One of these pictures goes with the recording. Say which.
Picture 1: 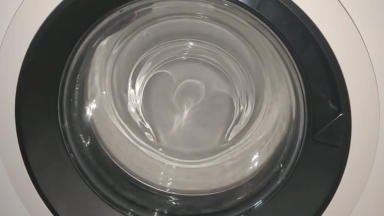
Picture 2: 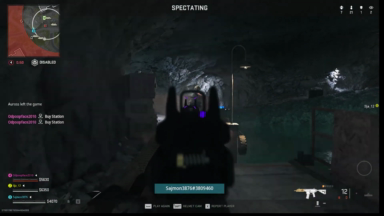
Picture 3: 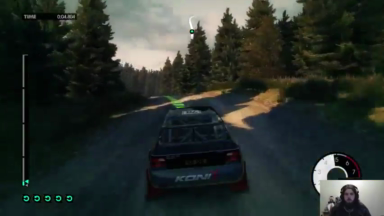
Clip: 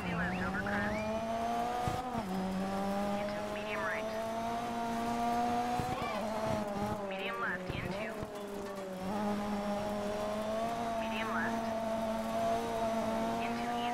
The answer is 3